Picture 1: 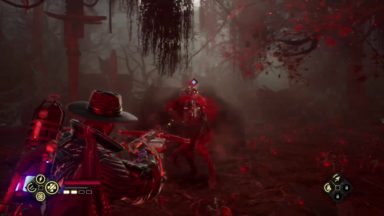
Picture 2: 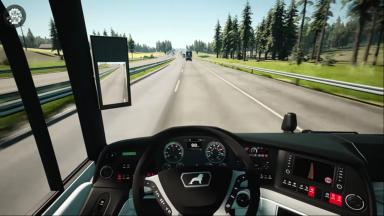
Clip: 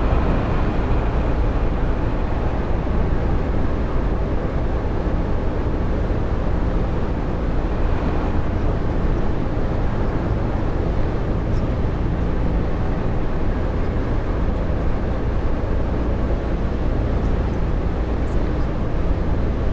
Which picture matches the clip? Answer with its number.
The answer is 2